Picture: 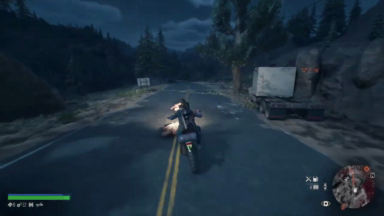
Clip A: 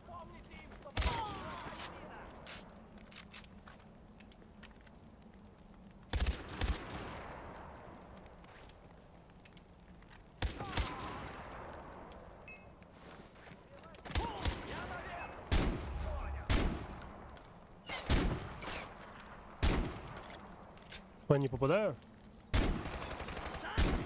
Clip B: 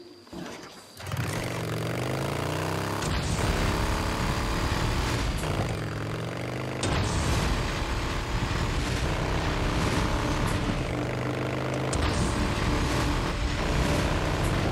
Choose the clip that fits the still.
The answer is B